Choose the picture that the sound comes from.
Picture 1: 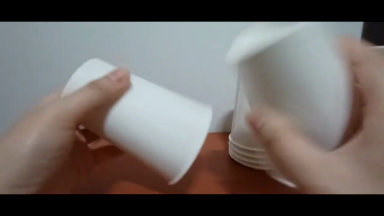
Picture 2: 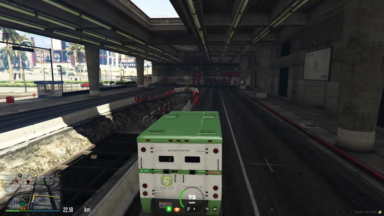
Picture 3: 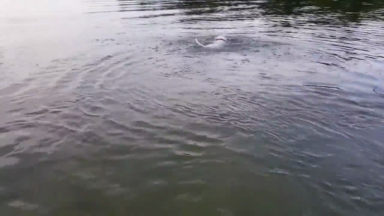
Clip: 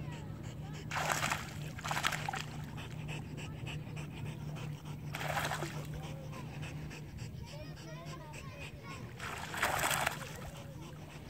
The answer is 3